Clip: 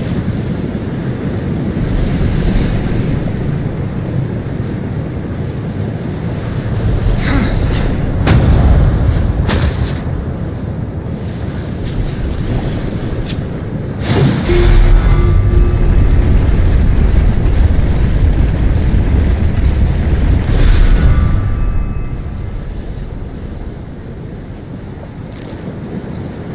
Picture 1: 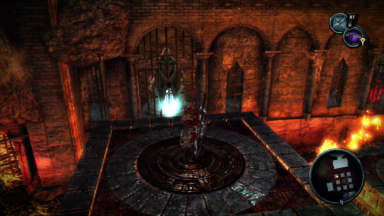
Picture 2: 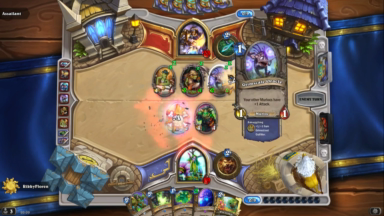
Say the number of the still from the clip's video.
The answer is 1